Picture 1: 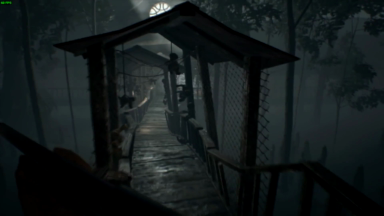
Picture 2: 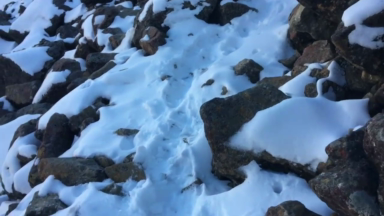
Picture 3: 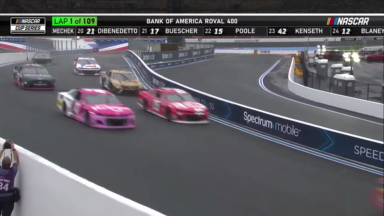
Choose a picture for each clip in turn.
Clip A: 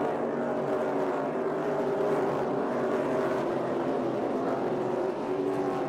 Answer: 3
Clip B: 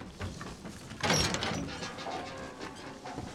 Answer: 1